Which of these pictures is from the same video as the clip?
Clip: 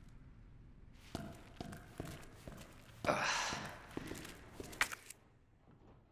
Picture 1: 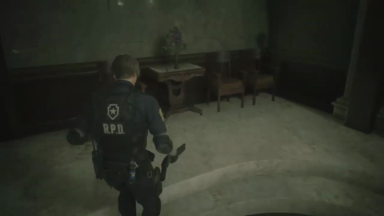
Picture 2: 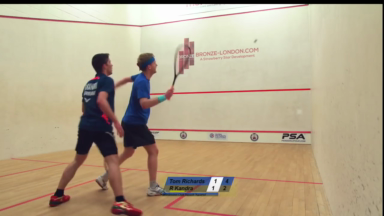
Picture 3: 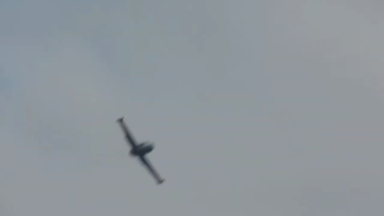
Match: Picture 1